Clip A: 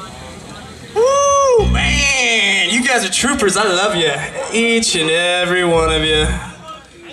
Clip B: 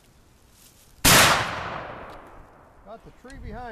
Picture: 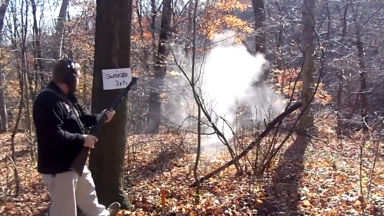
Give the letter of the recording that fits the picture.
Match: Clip B